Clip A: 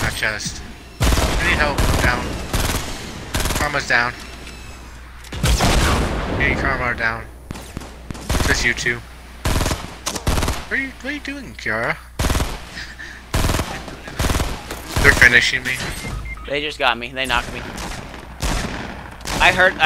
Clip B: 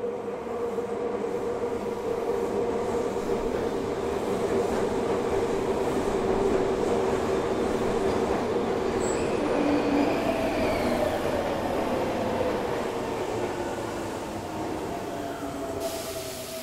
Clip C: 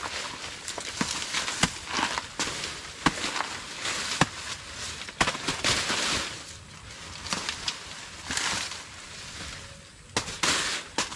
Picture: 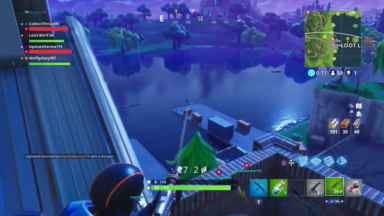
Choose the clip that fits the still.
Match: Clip A